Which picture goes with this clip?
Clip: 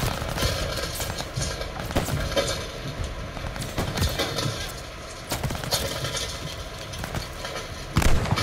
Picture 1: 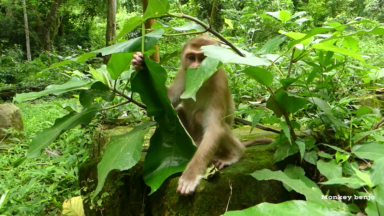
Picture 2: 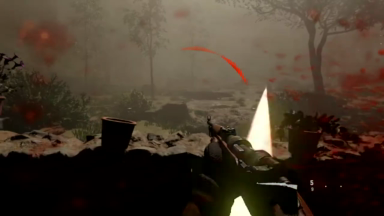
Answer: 2